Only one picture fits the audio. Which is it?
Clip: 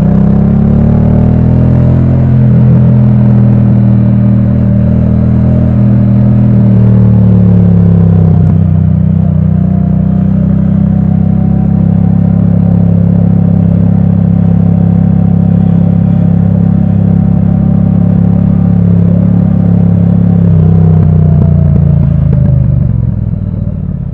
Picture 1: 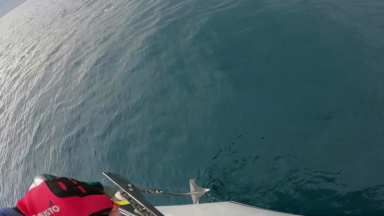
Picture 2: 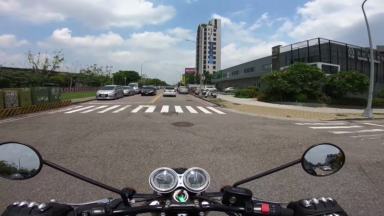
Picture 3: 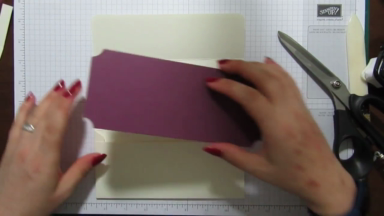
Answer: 2